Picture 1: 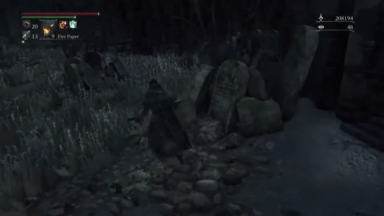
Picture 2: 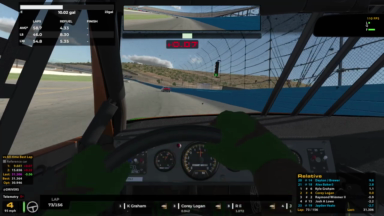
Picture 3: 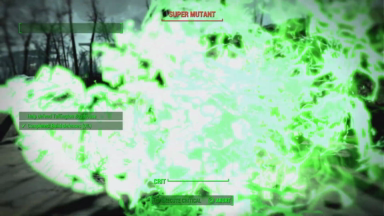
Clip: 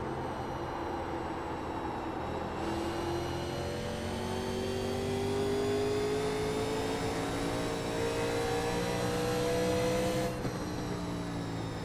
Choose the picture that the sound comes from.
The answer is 2